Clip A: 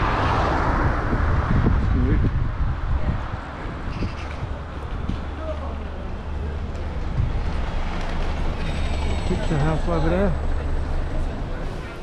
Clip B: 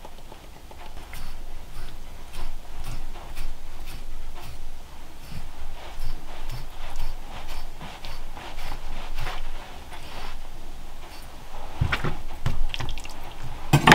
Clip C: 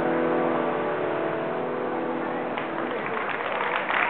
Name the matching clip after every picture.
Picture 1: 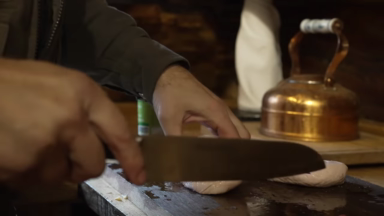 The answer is B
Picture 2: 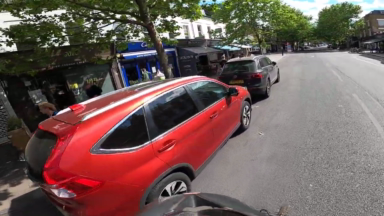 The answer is A